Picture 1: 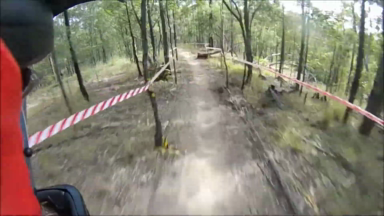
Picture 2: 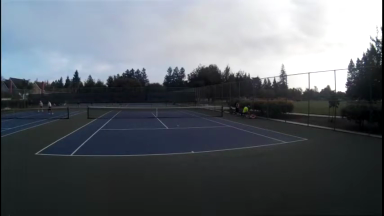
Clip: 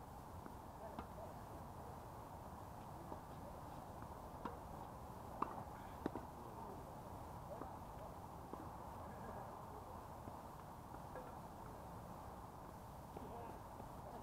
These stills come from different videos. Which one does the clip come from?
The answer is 2